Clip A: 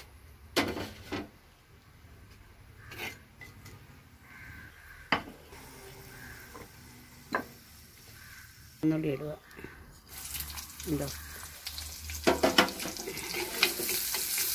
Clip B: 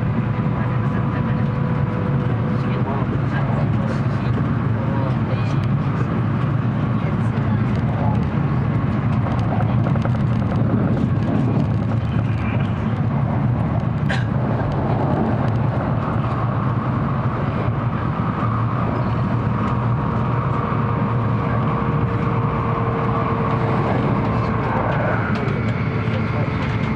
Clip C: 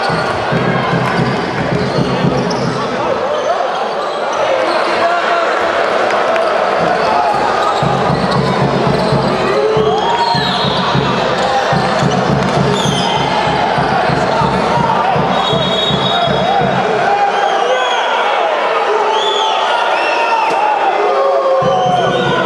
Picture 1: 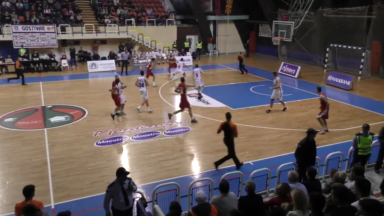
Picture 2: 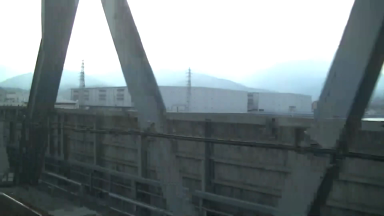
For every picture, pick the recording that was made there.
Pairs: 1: C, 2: B